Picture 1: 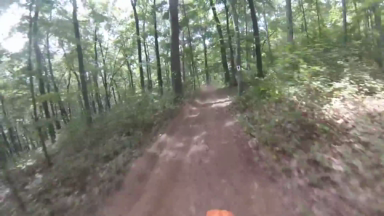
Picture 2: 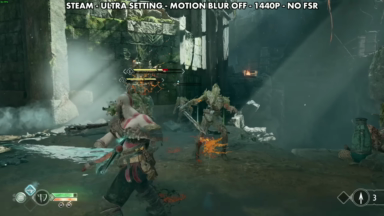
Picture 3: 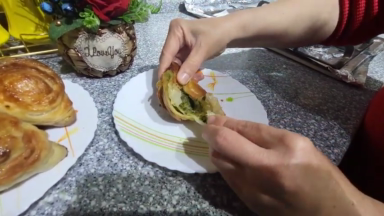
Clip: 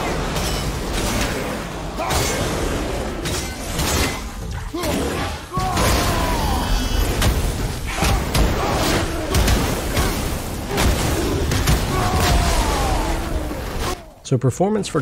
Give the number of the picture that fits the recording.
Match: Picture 2